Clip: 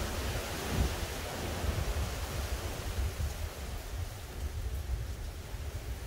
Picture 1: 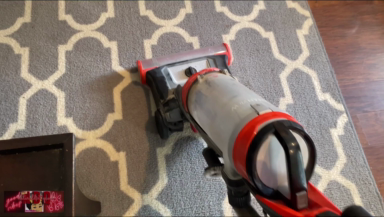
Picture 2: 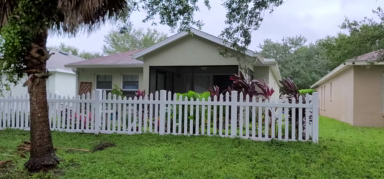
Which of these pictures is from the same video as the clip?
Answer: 2